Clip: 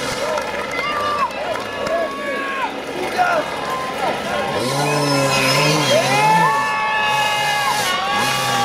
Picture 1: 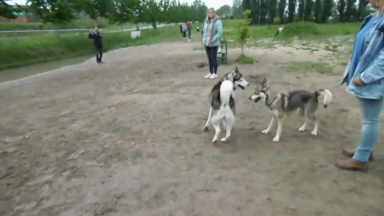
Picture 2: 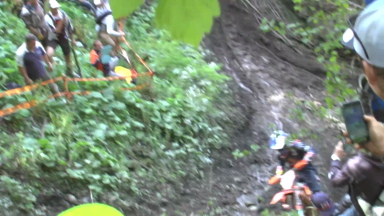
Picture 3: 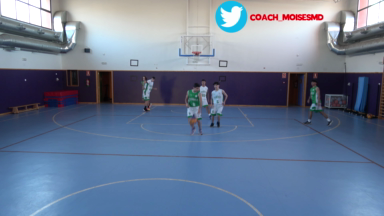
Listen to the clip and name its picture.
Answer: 2